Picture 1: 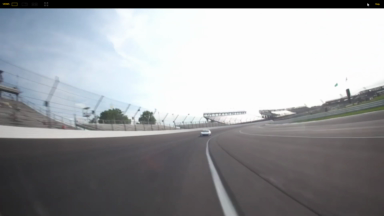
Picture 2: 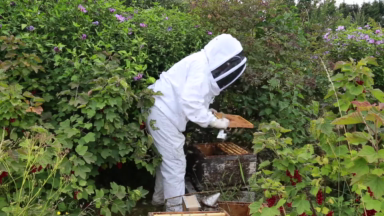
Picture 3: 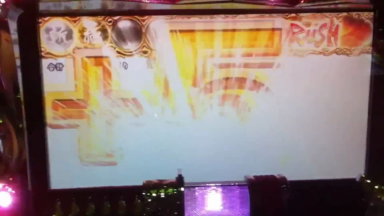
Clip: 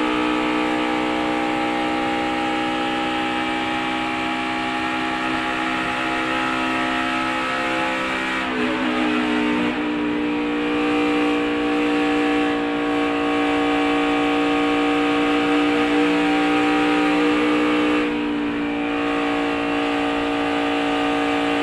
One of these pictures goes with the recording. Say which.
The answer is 1